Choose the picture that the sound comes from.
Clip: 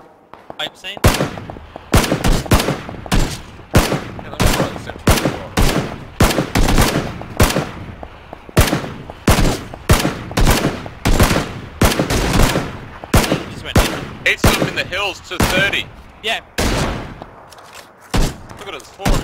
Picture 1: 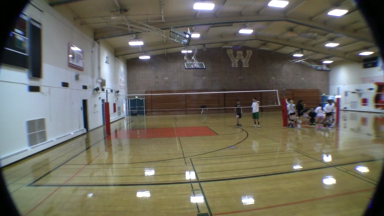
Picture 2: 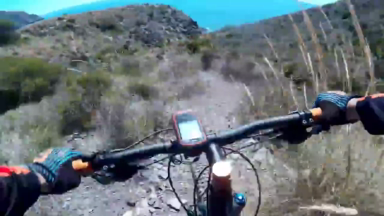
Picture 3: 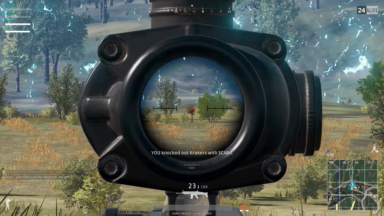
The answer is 3